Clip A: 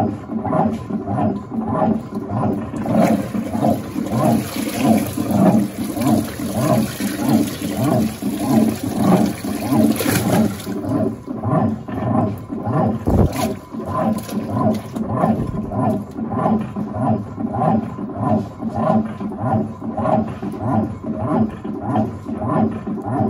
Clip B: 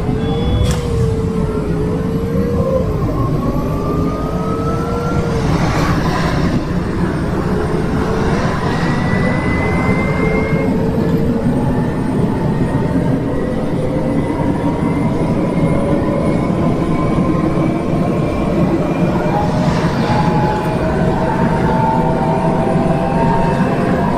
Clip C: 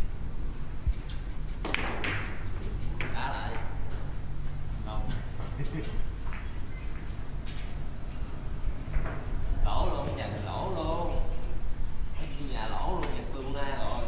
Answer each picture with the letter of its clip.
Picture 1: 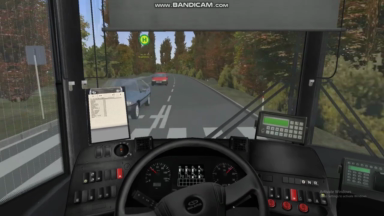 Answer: B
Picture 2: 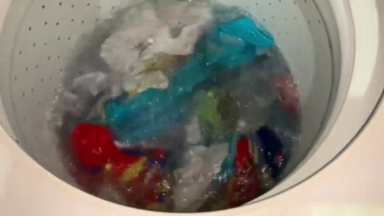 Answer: A